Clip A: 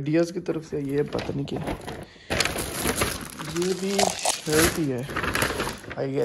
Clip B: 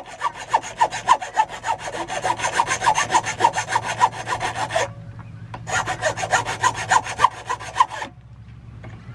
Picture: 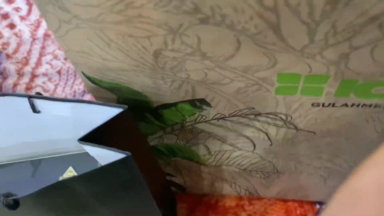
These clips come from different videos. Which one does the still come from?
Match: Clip A